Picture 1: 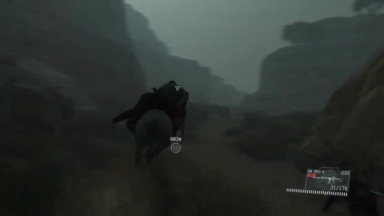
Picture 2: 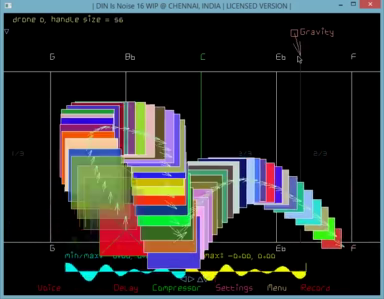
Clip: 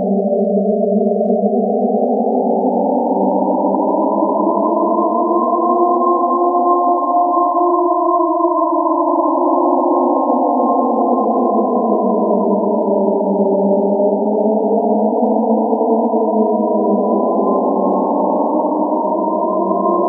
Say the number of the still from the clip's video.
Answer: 2